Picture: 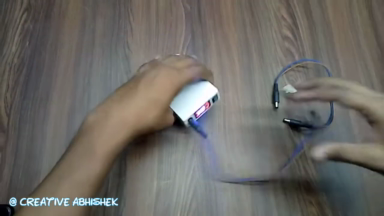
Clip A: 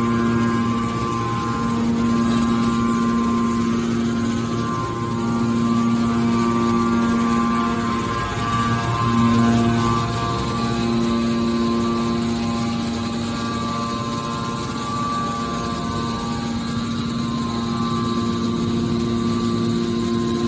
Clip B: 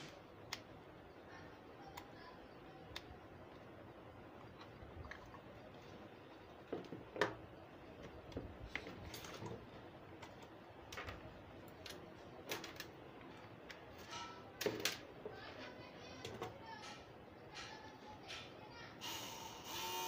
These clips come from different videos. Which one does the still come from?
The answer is B